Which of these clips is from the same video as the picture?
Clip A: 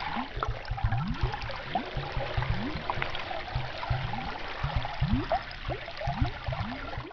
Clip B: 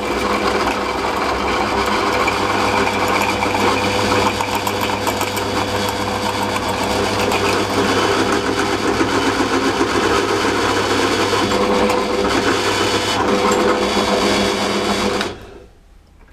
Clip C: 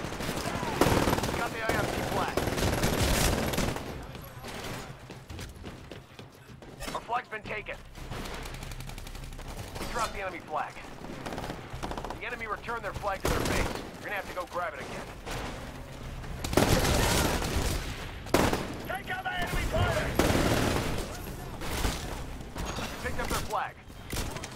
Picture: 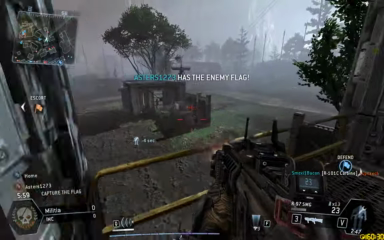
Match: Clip C